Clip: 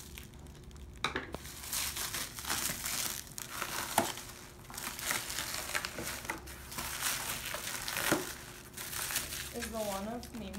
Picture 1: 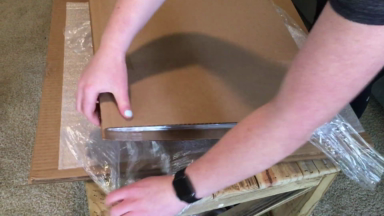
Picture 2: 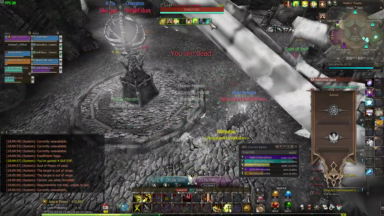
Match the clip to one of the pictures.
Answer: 1